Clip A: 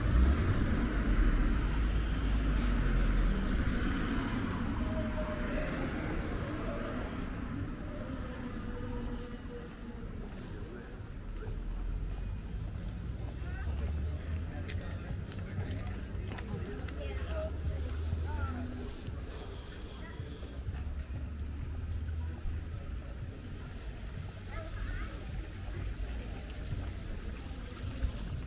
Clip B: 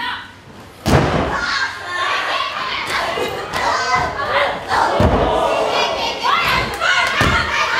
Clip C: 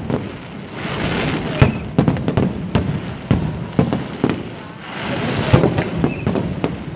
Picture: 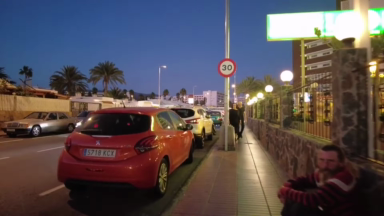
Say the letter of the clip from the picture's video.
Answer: A